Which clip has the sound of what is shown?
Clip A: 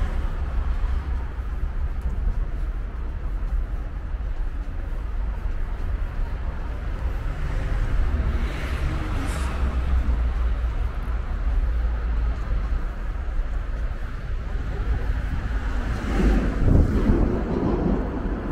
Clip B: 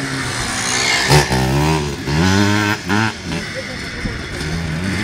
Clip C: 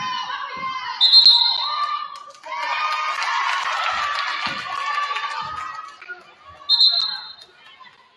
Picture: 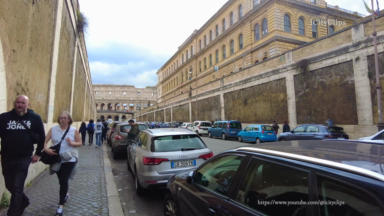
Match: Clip A